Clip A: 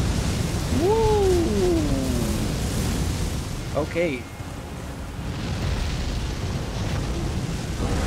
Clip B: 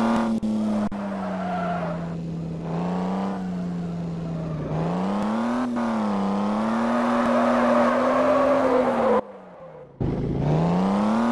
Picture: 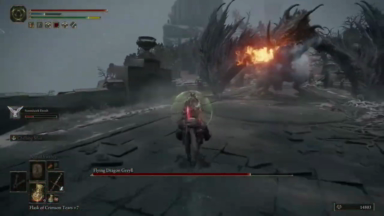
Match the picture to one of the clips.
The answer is A